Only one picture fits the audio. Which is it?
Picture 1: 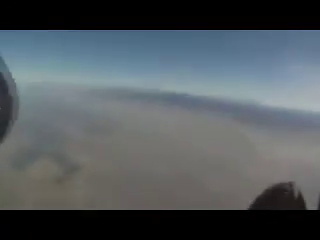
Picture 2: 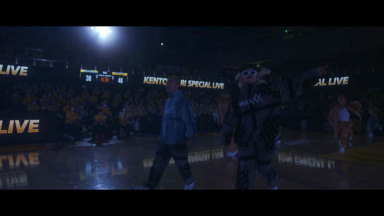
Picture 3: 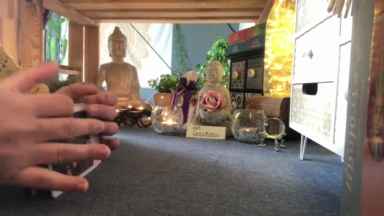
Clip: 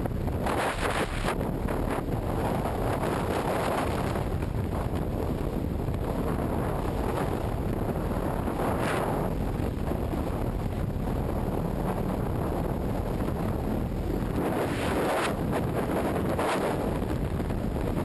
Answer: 1